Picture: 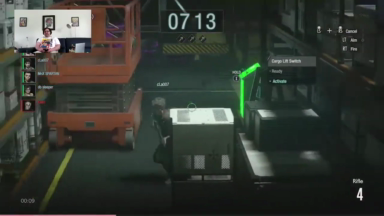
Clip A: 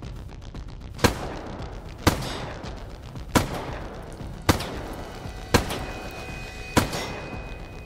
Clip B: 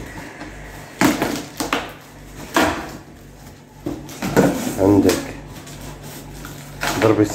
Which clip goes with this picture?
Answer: A